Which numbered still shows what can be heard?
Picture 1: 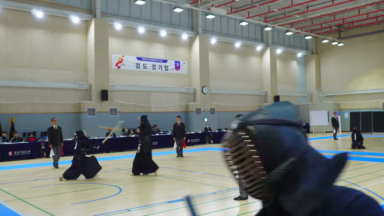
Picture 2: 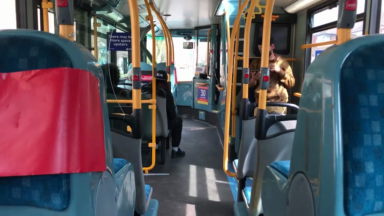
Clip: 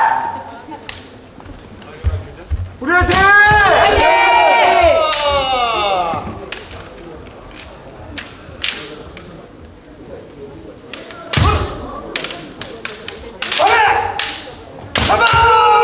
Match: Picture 1